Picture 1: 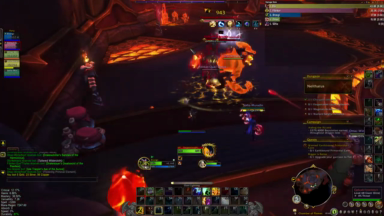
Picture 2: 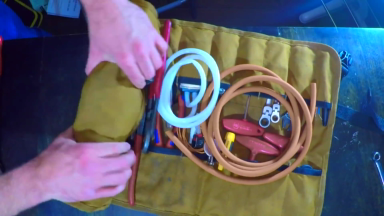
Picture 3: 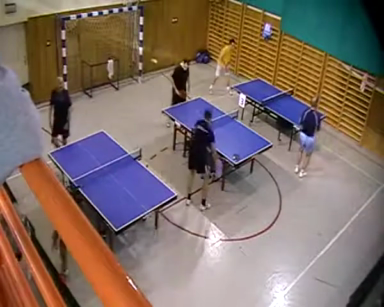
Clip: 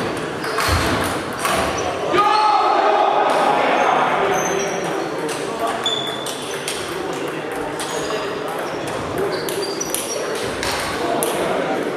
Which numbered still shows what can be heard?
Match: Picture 3